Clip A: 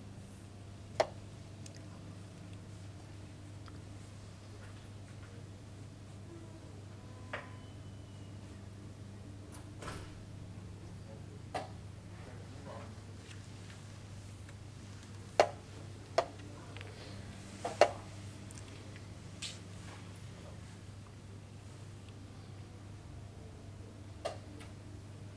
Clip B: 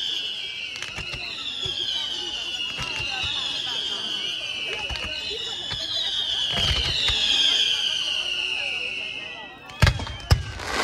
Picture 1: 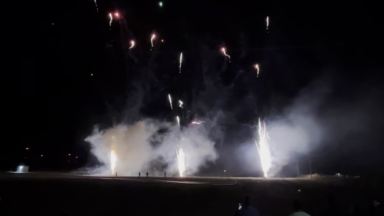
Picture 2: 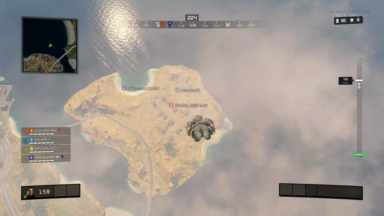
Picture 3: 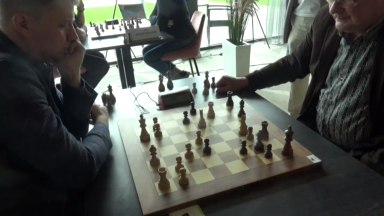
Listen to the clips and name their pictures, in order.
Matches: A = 3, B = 1